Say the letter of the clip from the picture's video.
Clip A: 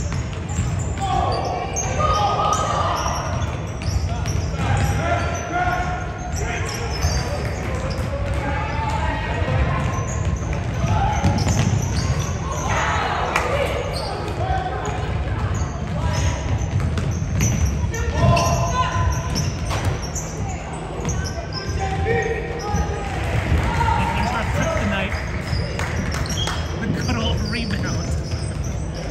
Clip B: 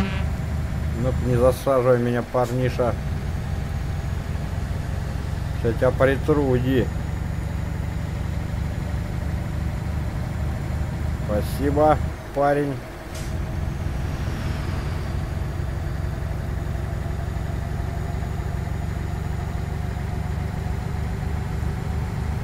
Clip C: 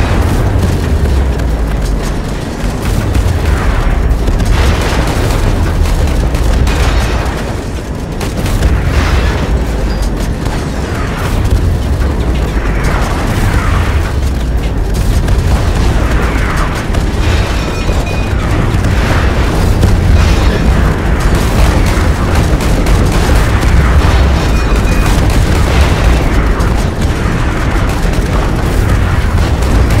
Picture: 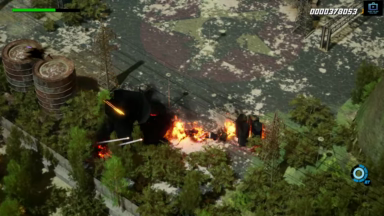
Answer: C